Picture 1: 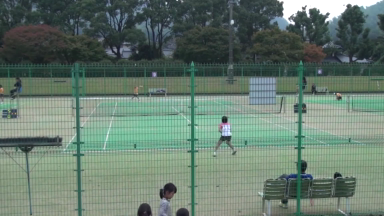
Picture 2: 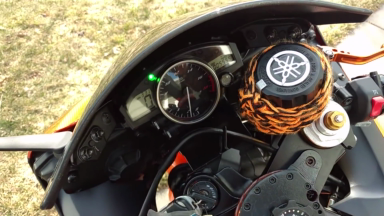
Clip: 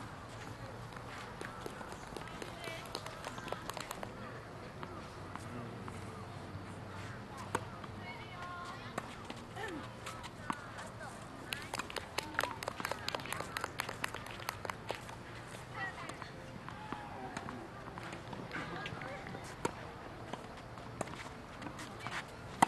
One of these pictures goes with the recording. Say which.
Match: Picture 1